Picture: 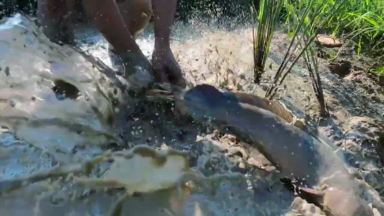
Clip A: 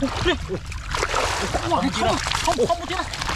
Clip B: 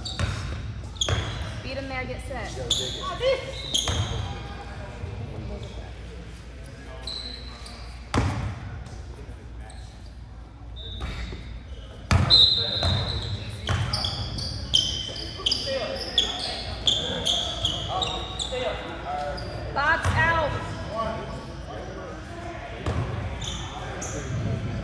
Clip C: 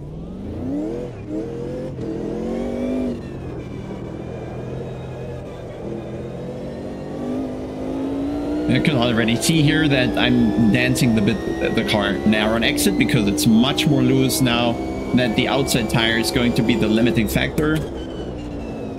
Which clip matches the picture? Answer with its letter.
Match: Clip A